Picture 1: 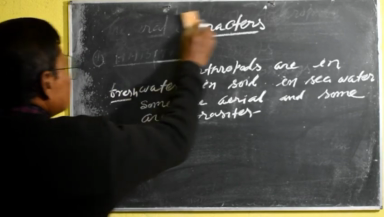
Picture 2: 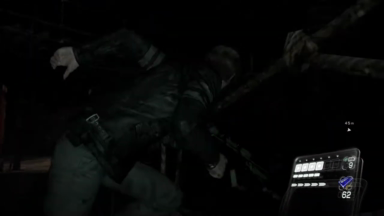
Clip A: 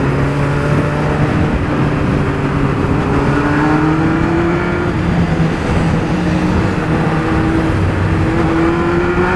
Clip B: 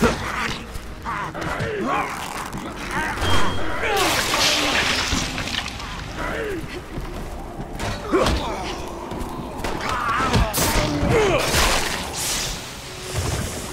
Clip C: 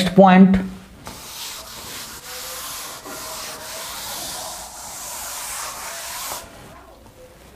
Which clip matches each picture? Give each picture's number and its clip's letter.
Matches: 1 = C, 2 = B